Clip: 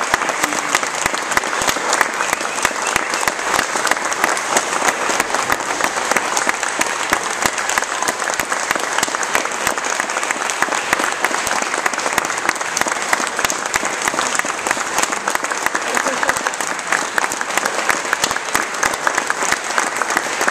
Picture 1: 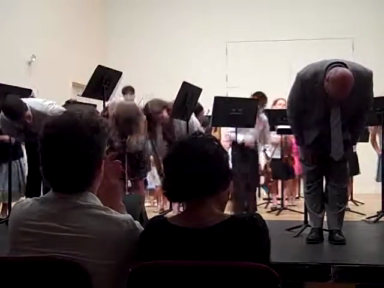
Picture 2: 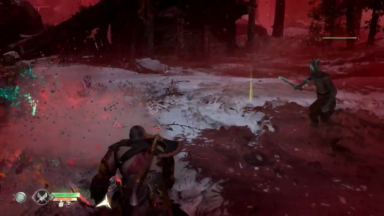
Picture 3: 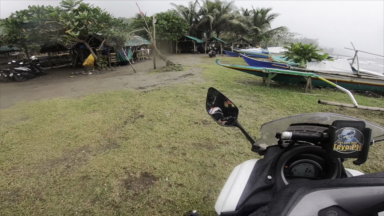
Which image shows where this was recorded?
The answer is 1